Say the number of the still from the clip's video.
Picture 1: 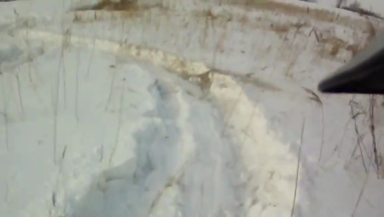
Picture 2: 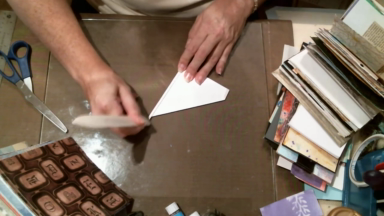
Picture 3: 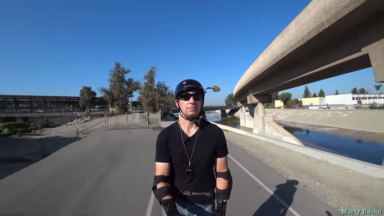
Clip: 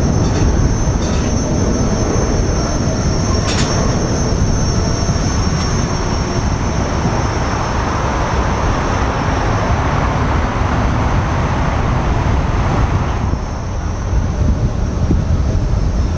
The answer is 3